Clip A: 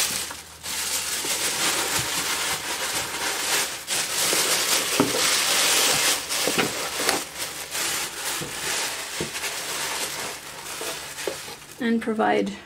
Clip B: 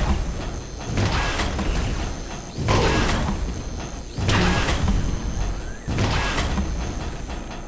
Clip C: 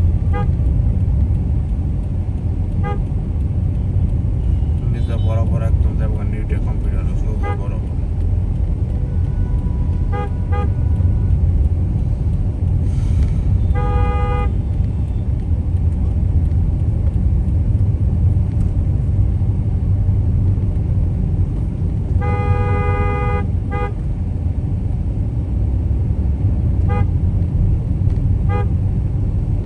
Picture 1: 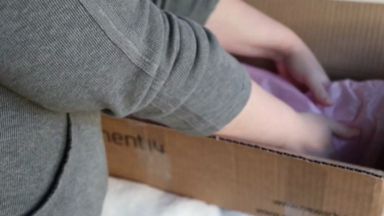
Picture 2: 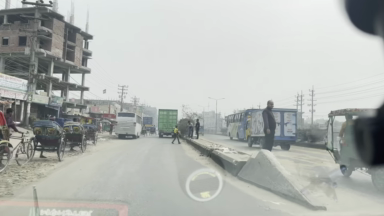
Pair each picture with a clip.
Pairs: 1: A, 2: C